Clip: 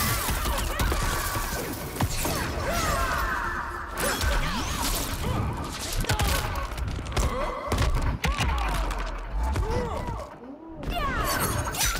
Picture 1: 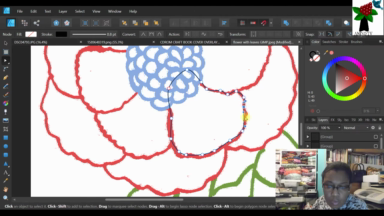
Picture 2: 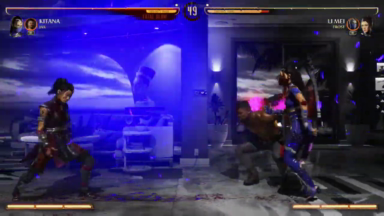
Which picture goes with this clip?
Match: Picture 2